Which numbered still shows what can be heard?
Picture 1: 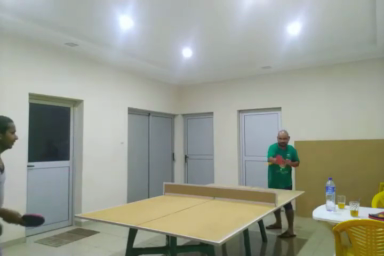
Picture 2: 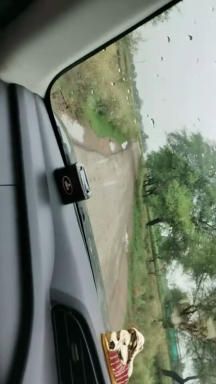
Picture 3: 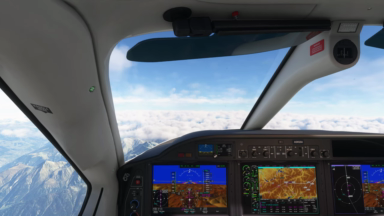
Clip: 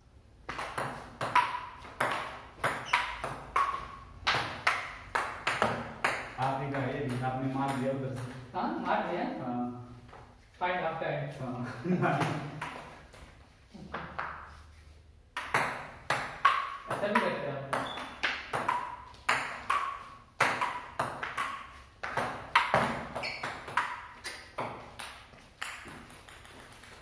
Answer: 1